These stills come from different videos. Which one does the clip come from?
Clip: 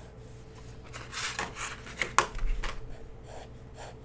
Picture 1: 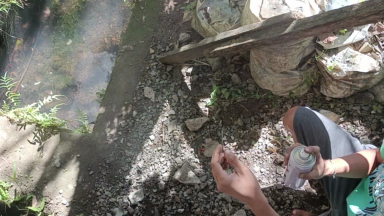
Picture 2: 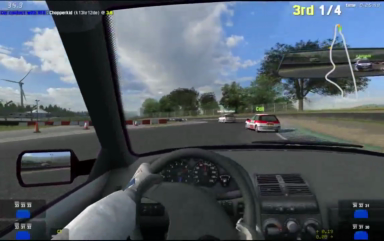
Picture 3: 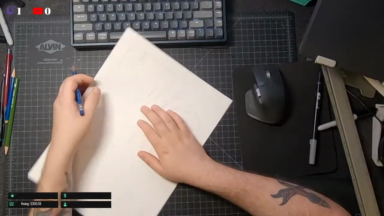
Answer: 3